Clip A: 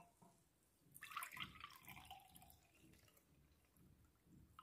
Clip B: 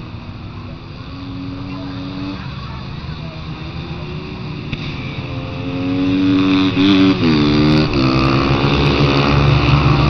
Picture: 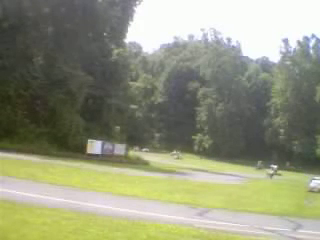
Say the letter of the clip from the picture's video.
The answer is B